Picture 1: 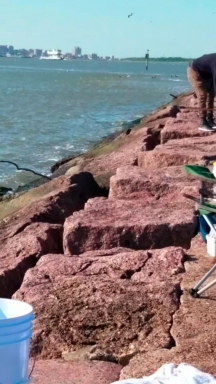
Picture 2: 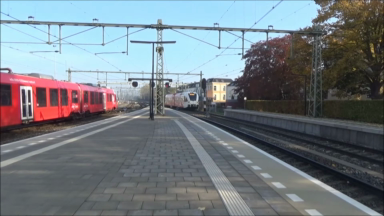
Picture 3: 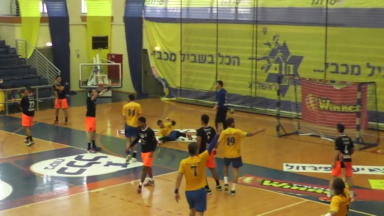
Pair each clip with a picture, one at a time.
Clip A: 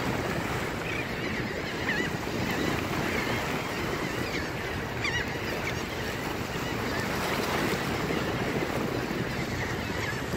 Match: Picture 1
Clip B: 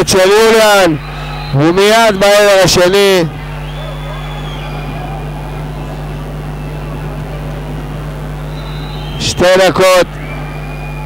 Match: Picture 3